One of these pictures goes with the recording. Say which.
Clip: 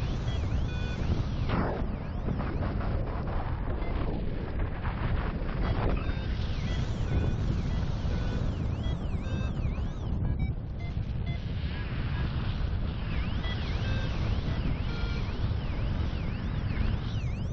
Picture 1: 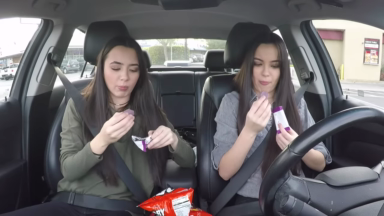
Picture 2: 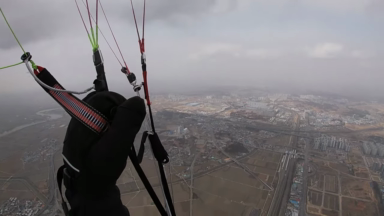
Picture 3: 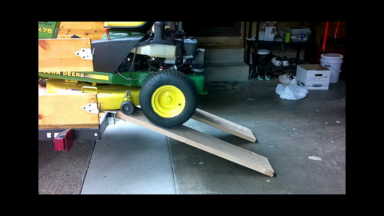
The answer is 2